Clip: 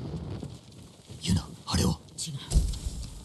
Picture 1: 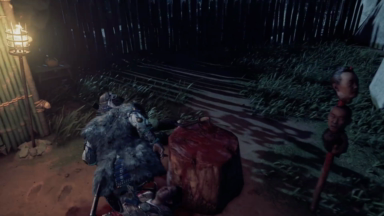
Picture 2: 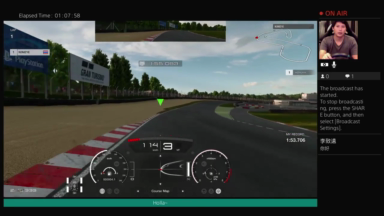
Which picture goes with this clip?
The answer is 1